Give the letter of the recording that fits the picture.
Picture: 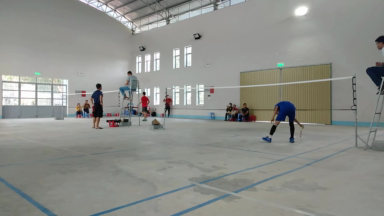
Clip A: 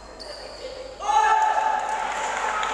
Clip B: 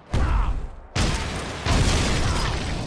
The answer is A